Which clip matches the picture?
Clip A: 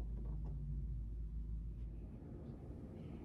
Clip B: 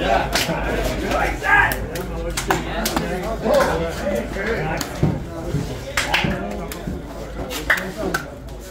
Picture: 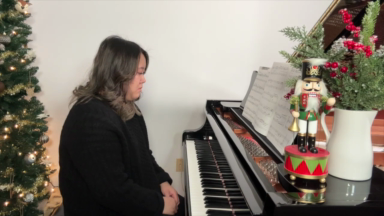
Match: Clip A